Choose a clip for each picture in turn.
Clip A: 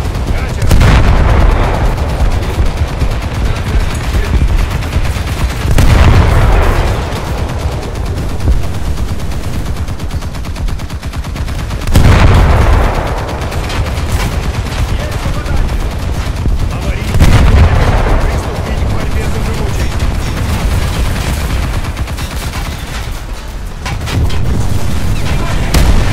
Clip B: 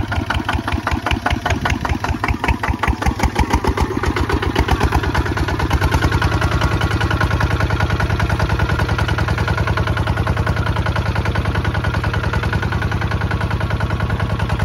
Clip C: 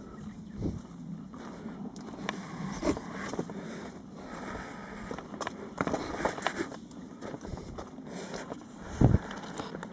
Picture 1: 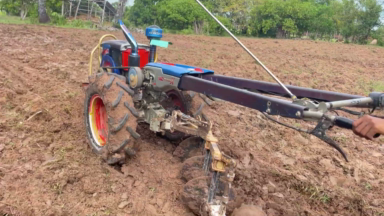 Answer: B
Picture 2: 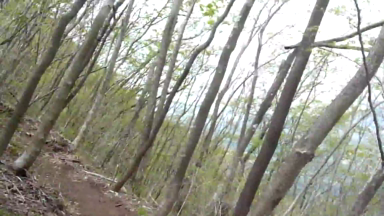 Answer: C